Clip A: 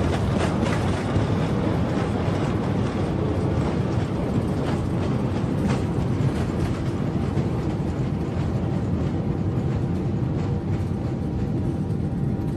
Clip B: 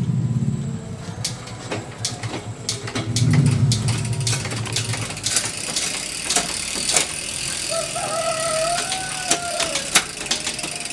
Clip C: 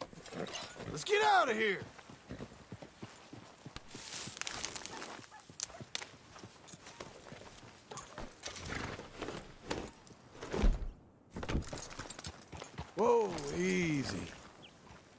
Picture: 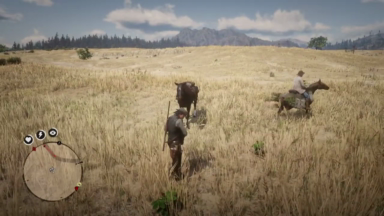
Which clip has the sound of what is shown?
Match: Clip C